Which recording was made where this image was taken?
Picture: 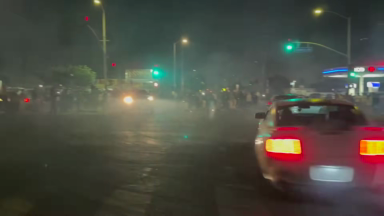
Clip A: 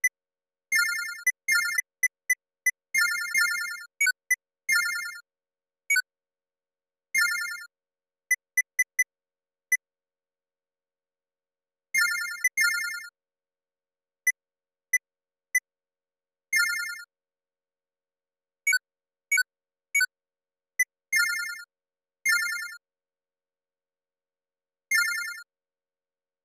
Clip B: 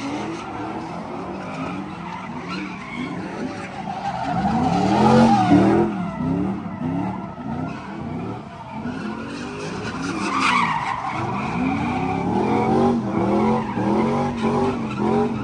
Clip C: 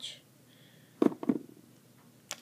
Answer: B